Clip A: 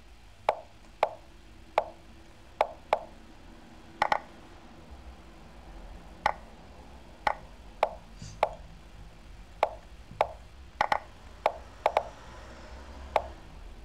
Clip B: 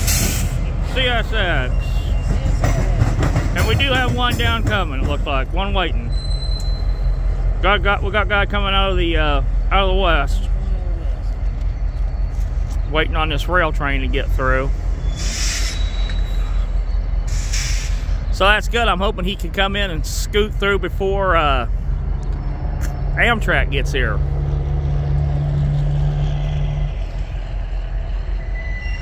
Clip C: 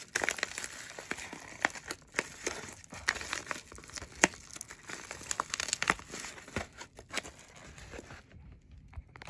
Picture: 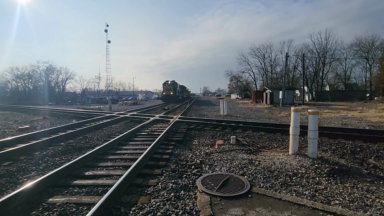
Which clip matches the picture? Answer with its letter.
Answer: B